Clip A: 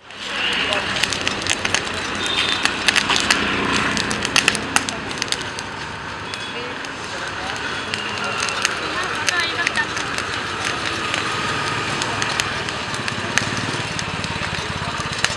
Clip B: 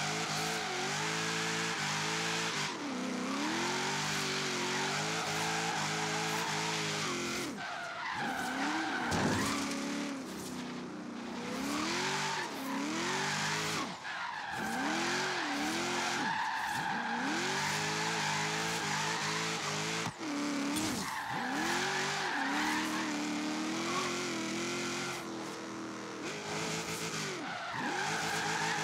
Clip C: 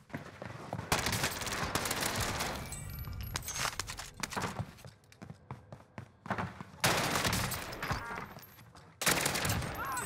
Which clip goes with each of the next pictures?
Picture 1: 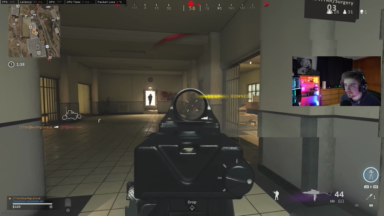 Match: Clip C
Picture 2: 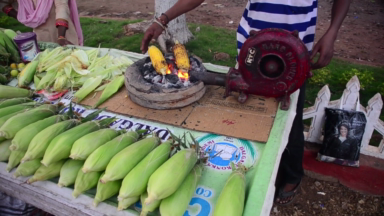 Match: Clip A